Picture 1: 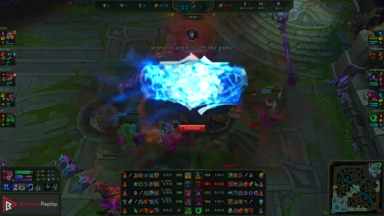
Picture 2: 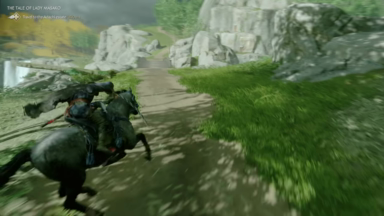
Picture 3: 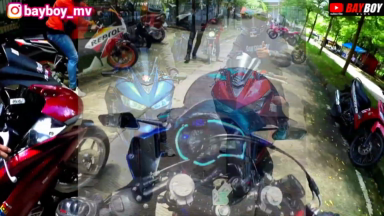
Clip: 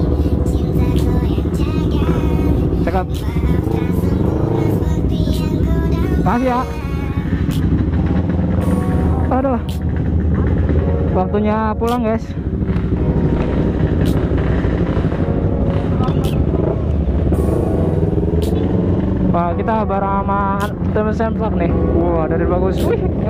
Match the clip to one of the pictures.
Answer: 3